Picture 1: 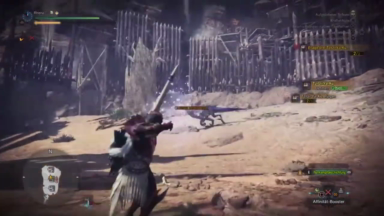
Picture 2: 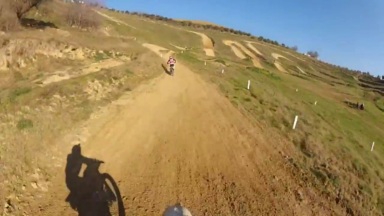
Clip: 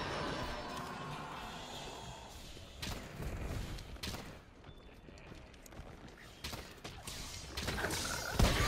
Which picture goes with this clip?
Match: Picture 1